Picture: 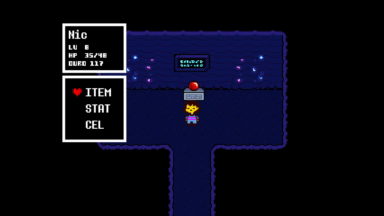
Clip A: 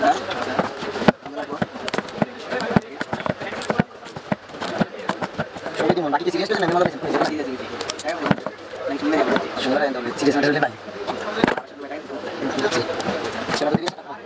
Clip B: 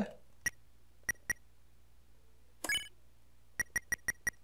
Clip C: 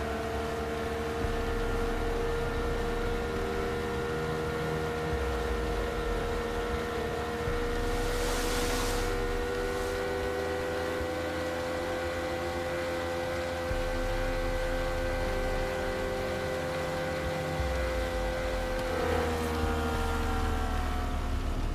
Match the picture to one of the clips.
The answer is B